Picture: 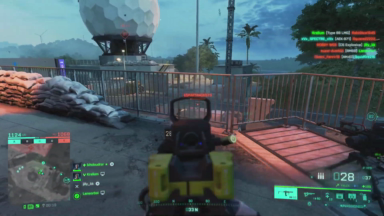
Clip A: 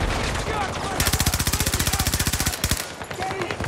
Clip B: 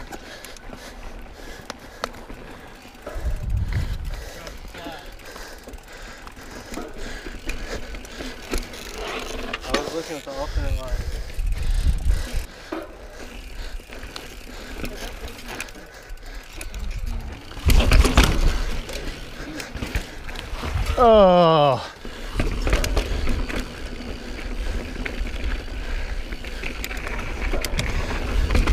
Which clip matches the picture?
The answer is A